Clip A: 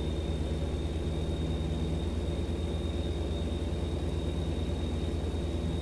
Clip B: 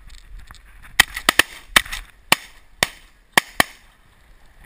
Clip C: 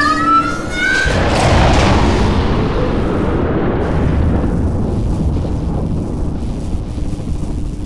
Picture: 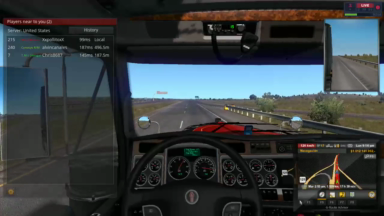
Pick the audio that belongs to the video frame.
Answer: A